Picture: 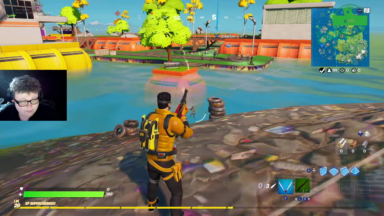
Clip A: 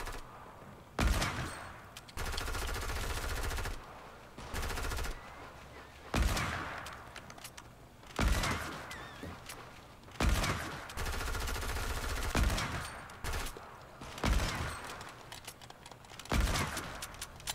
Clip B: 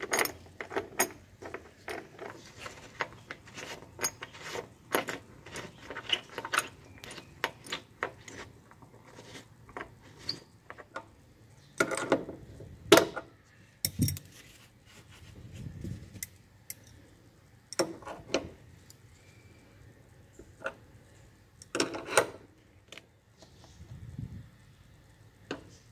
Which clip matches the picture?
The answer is A